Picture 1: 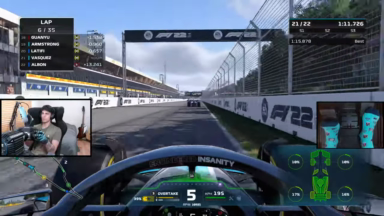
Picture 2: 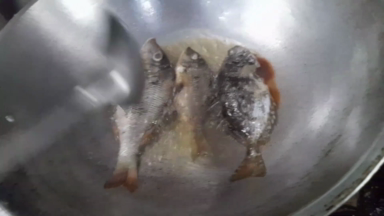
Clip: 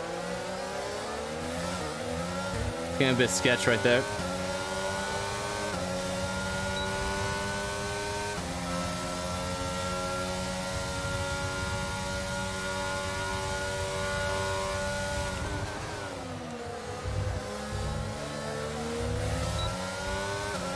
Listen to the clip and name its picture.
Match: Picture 1